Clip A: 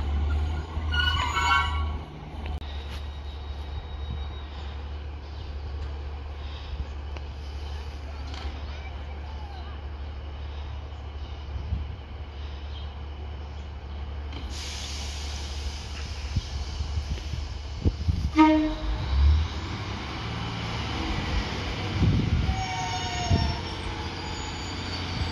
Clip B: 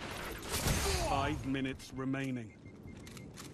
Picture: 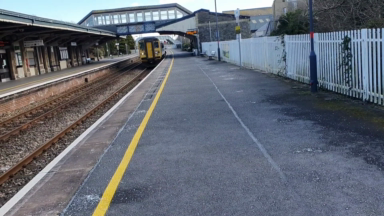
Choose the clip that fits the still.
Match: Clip A